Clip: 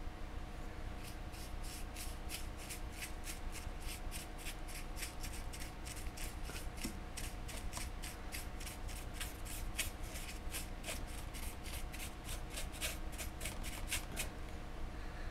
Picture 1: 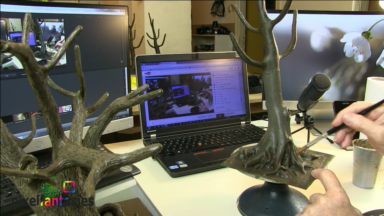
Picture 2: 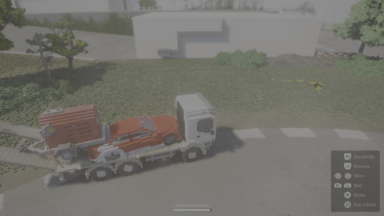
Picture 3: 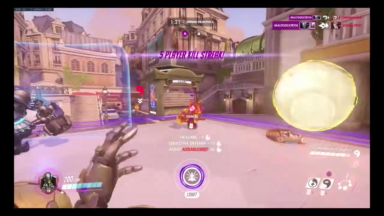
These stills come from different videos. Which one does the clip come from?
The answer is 1